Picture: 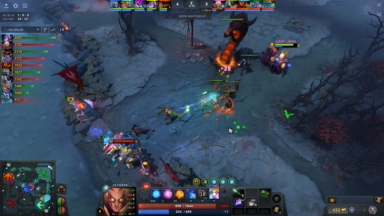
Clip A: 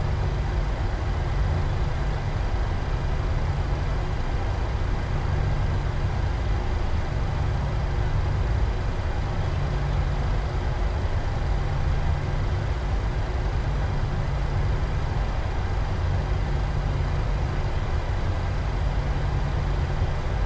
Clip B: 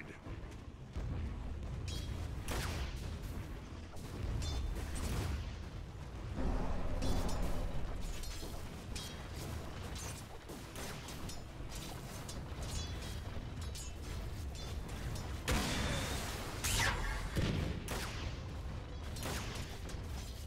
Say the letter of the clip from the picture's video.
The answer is B